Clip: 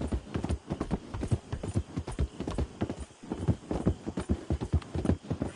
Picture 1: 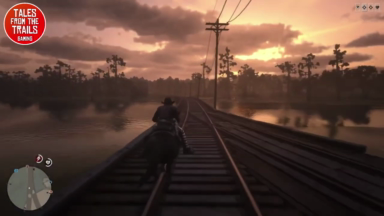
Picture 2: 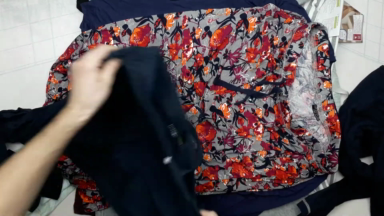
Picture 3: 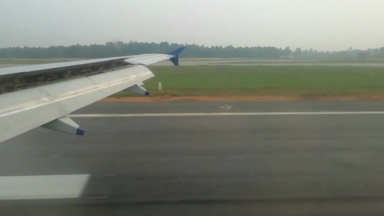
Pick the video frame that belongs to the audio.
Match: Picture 1